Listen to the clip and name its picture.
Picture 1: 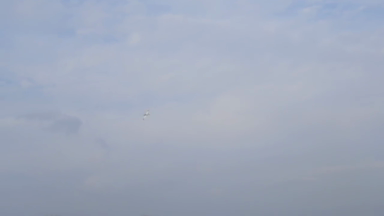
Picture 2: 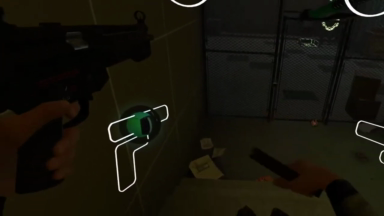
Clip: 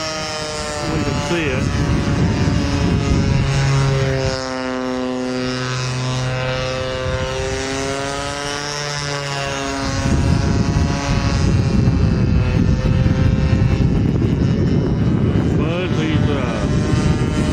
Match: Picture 1